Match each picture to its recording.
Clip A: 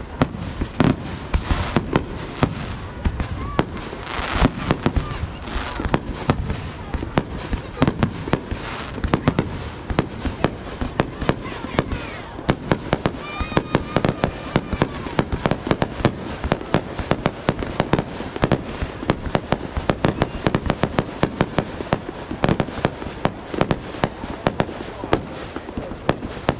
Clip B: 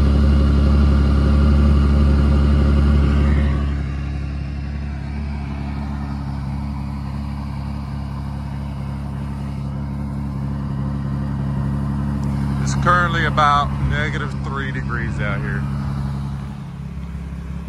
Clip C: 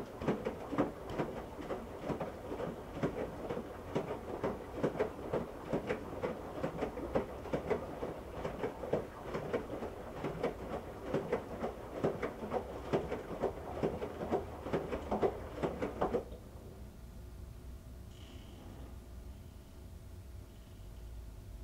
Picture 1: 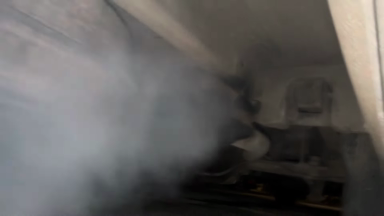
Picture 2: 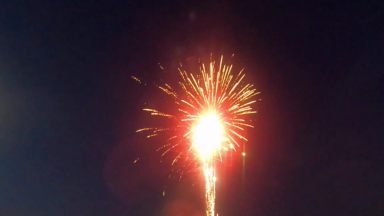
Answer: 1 B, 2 A